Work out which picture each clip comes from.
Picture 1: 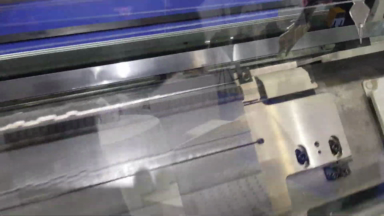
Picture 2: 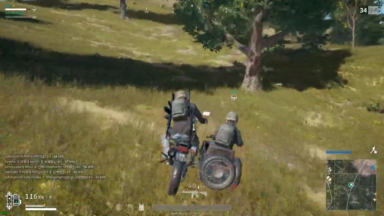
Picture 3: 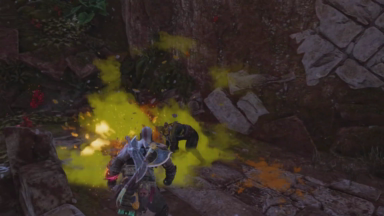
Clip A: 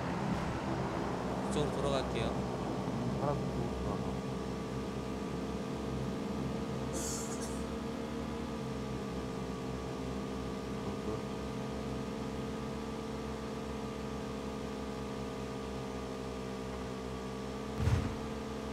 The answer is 2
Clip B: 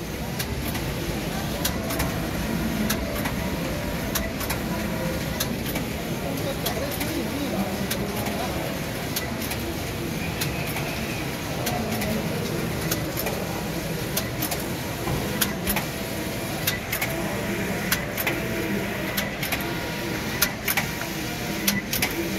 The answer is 1